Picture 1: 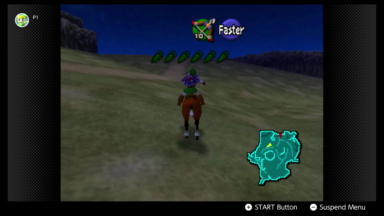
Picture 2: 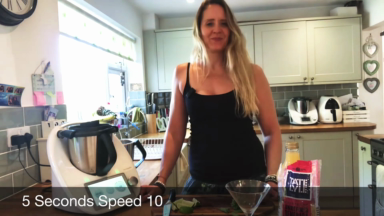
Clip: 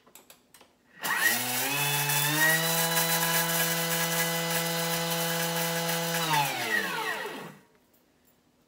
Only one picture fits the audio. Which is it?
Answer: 2